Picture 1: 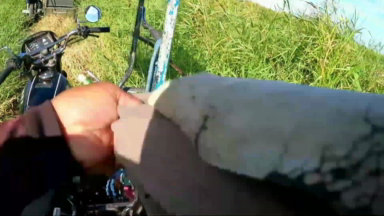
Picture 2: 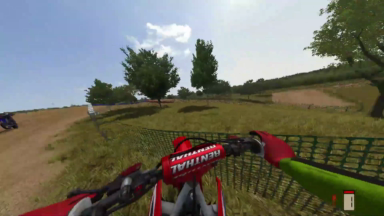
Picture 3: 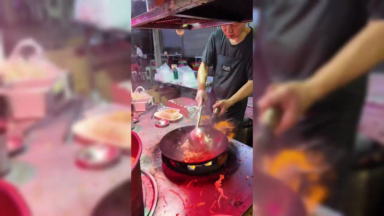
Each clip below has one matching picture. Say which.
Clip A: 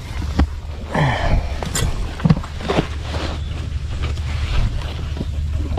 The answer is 1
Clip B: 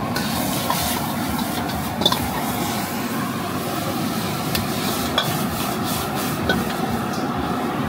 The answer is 3